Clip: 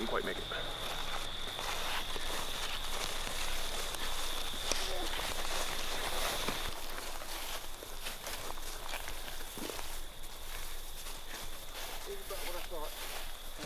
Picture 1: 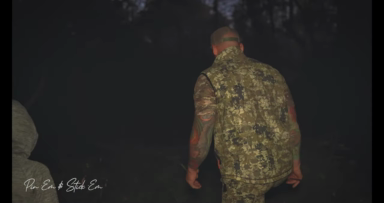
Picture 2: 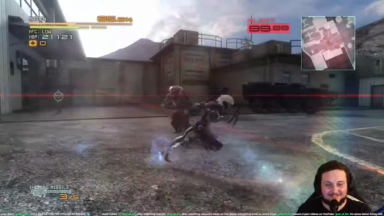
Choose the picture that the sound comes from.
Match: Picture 1